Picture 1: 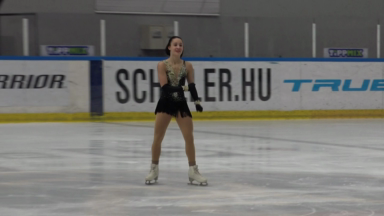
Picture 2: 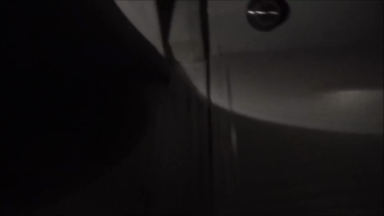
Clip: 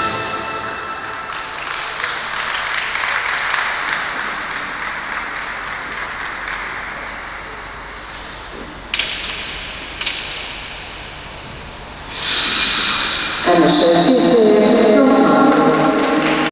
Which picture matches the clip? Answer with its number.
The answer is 1